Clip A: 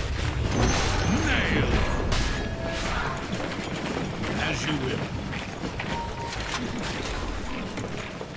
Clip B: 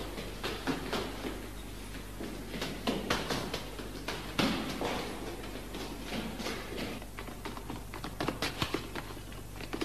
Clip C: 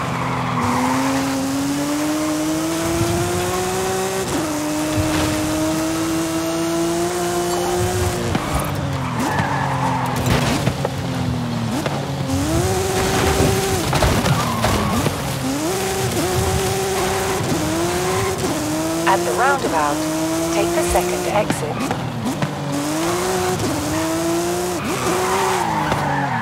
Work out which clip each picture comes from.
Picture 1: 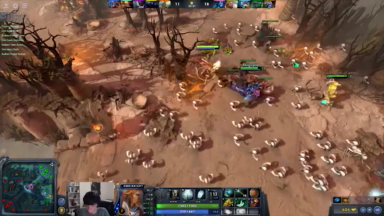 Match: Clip A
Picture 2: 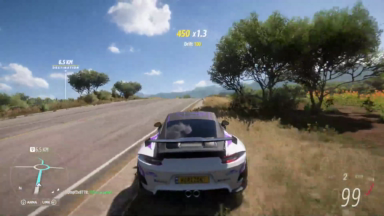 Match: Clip C